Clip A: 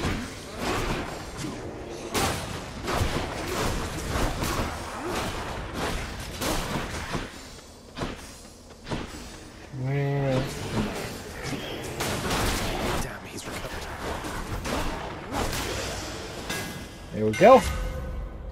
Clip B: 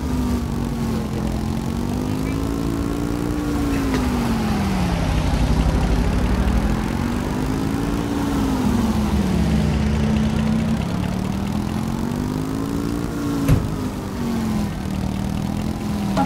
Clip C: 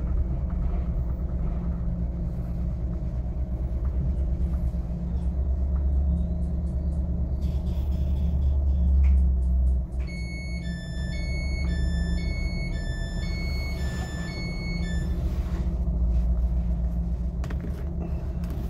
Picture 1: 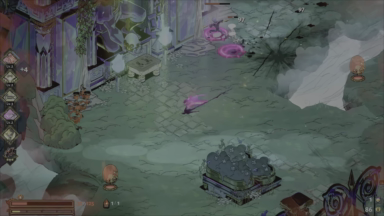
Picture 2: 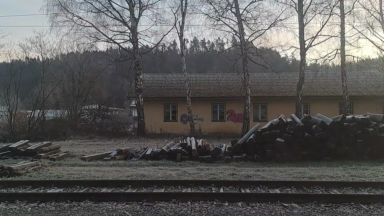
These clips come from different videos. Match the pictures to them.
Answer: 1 A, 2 C